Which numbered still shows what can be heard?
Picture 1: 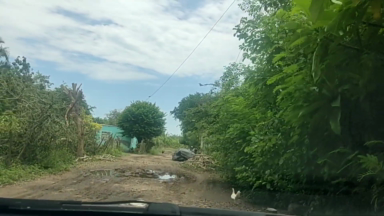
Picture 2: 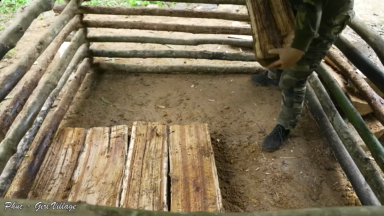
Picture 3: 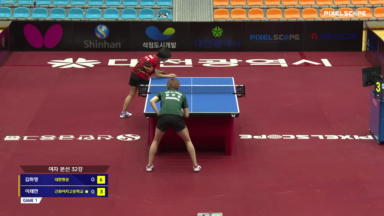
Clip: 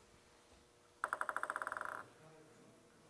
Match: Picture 3